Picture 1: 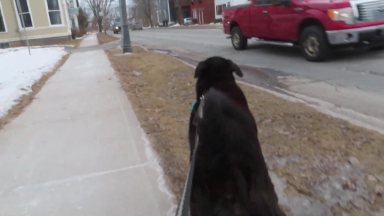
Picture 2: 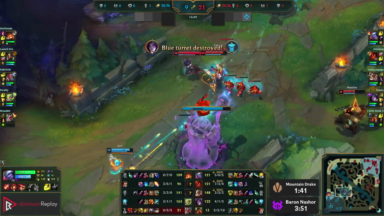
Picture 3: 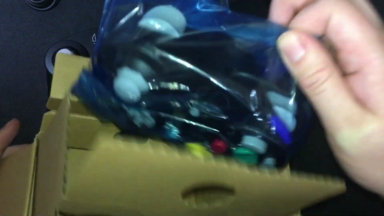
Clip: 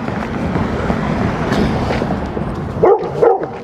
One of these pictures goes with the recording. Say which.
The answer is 1